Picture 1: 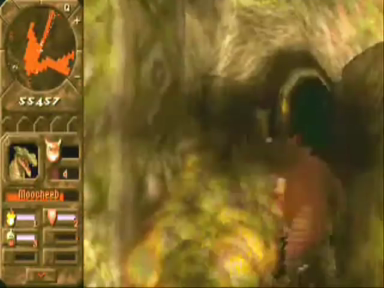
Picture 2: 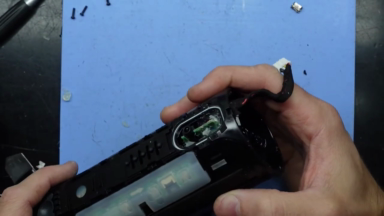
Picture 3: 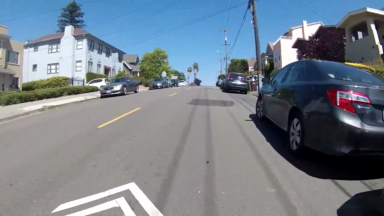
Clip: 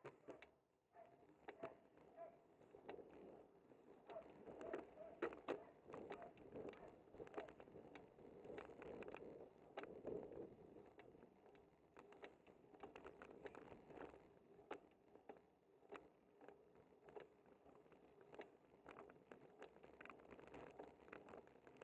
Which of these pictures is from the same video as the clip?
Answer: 3